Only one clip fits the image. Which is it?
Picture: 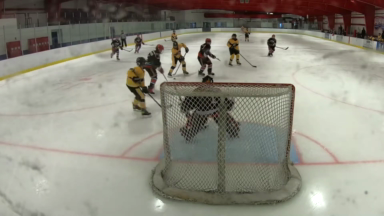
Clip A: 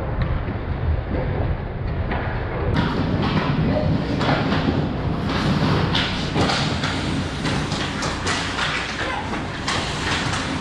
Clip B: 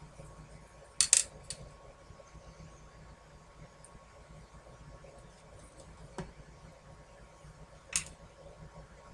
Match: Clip A